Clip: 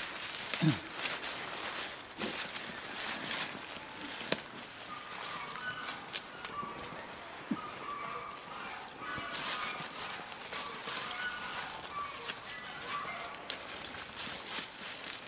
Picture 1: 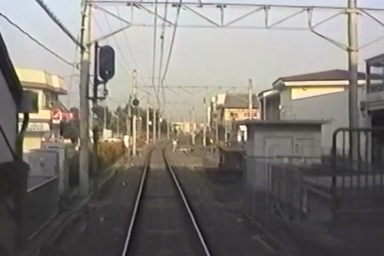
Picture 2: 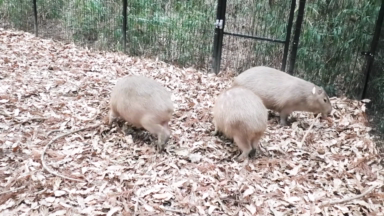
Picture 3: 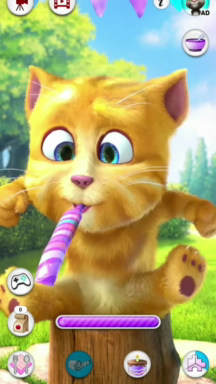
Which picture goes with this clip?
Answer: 2